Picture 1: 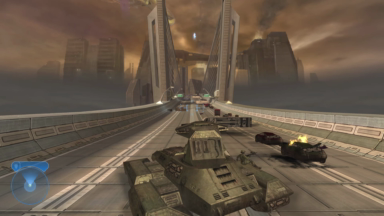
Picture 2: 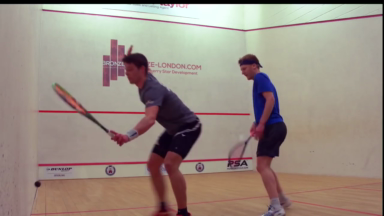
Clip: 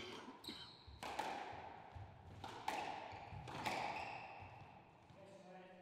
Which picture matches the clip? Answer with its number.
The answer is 2